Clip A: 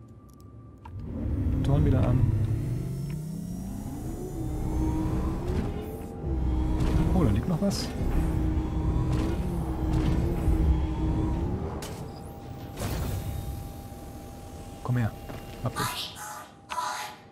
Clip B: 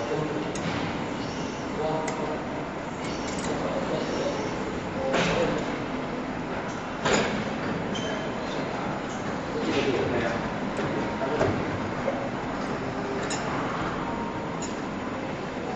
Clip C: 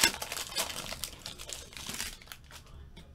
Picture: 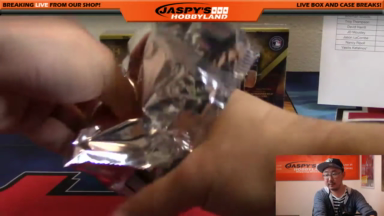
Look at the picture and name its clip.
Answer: C